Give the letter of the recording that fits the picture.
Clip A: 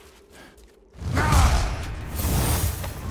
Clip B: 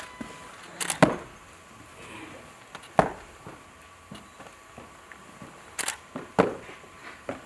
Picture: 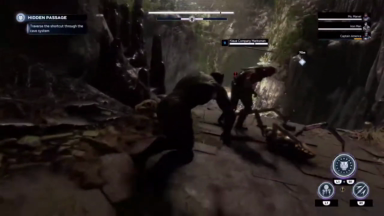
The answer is A